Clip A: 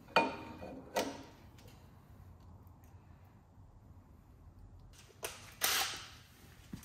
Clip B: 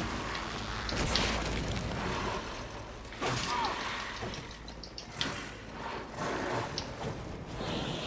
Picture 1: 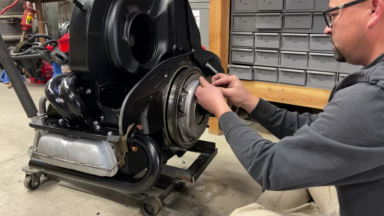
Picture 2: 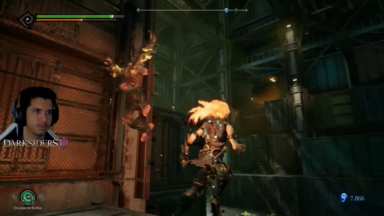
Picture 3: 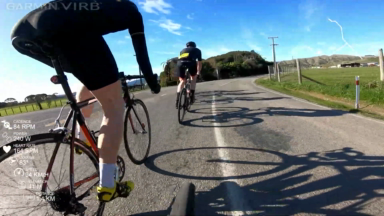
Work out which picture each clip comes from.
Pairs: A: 1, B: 2